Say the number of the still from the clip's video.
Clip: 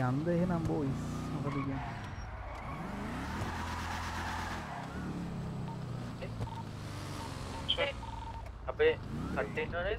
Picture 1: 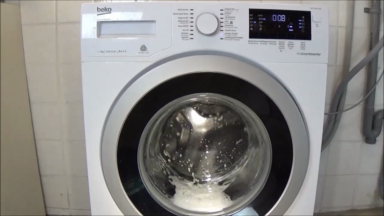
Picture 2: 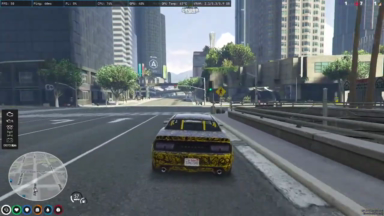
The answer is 2